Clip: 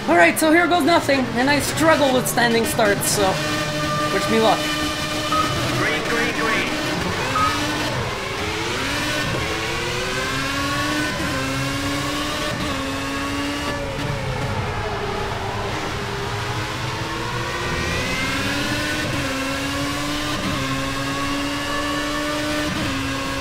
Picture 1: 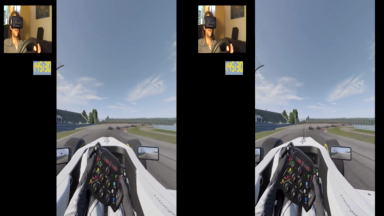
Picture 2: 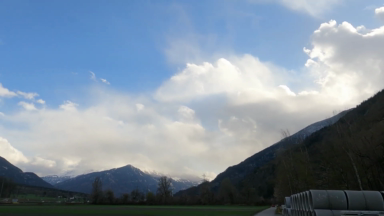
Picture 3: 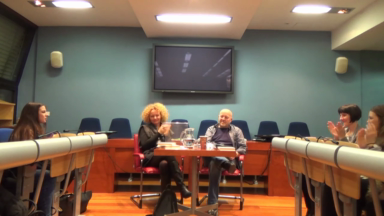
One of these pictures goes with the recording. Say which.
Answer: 1